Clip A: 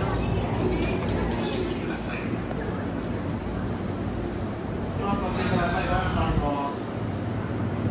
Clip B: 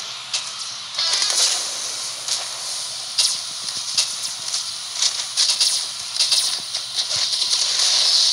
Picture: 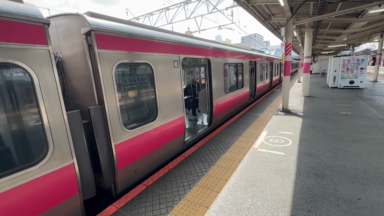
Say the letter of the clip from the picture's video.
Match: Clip A